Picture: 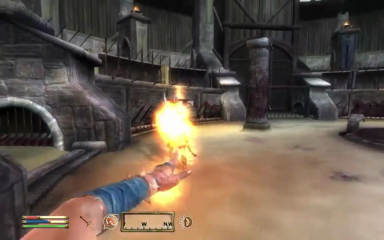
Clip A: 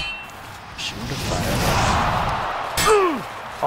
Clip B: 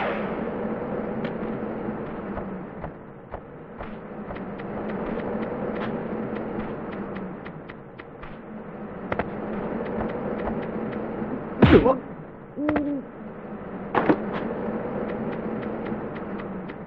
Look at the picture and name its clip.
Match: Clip A